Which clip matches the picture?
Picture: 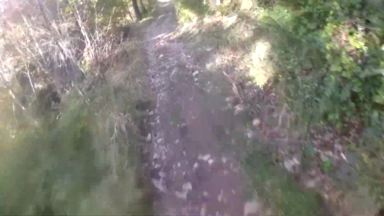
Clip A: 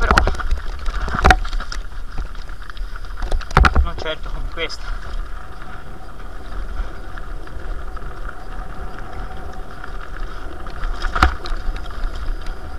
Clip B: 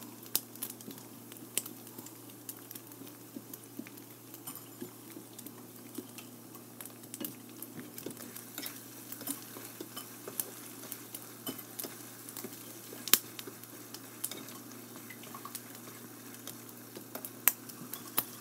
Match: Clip A